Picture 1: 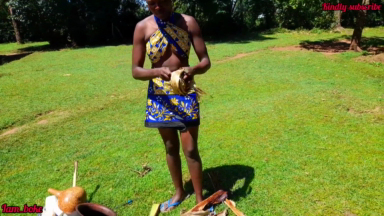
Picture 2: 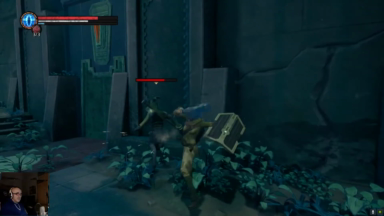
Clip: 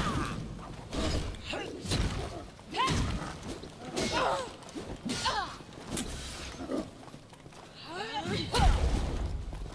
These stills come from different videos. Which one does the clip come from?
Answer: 2